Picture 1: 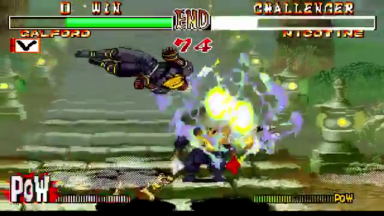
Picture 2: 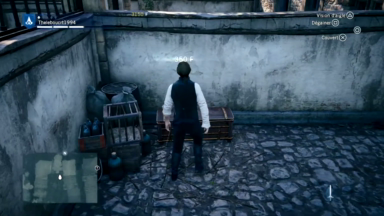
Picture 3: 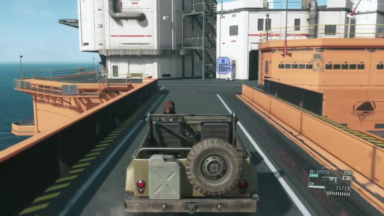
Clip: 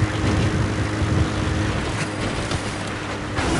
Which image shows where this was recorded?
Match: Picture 3